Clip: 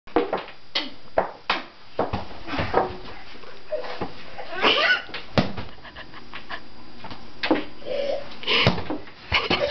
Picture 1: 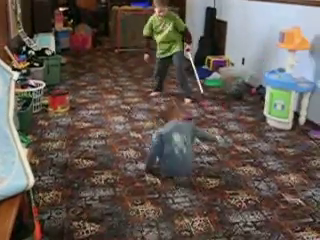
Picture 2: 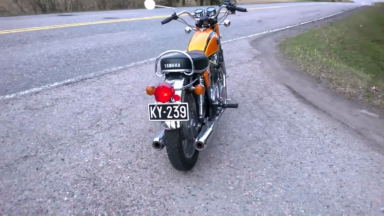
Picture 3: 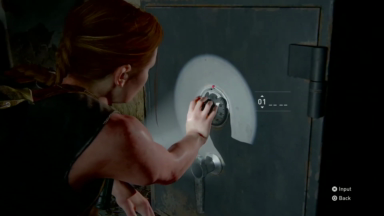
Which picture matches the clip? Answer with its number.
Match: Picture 1